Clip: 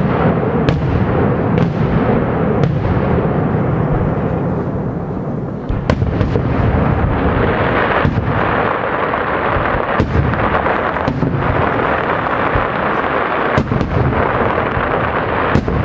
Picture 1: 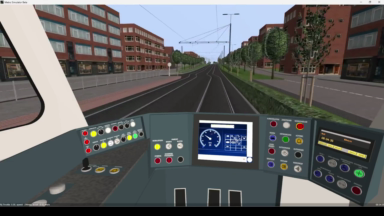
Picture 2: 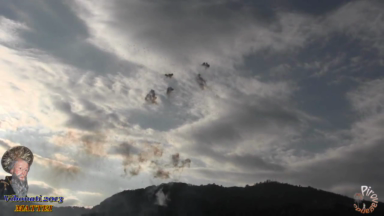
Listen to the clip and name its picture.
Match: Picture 2